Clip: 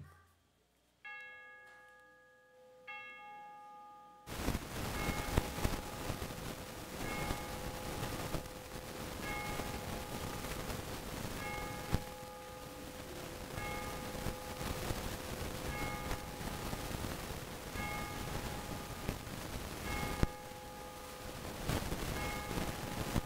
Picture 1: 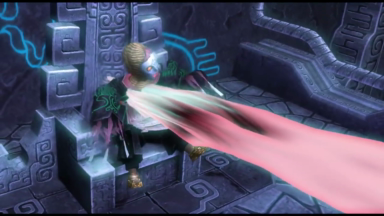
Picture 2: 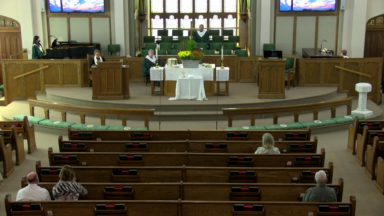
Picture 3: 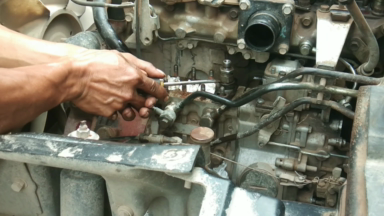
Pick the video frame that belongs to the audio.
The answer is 2